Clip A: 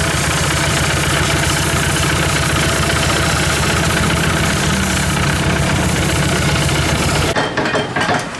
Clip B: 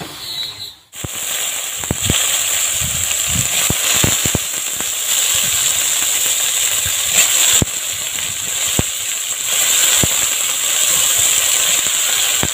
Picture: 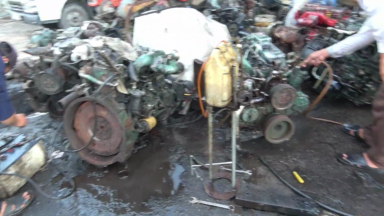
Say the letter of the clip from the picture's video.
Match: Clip A